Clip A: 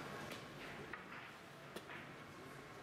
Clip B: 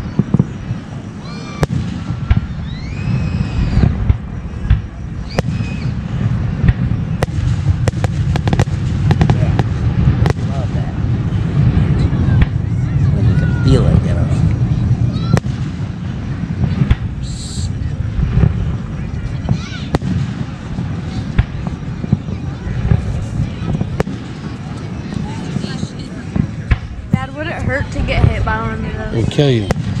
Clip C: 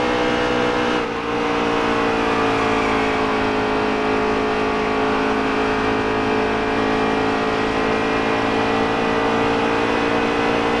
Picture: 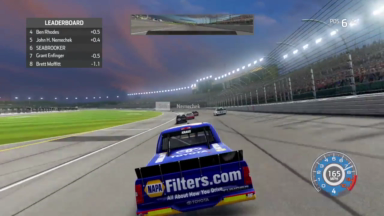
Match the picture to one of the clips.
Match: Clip C